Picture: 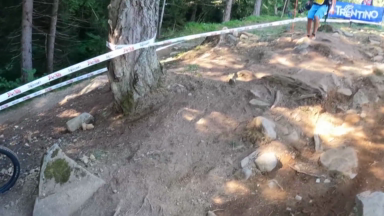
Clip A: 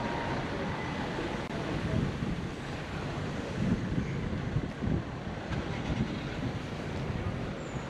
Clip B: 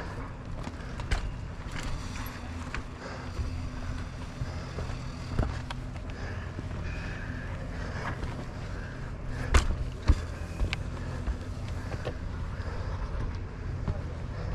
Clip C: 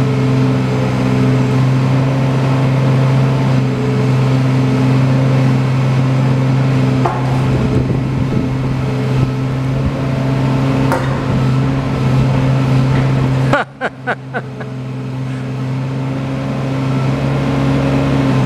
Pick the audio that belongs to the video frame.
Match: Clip B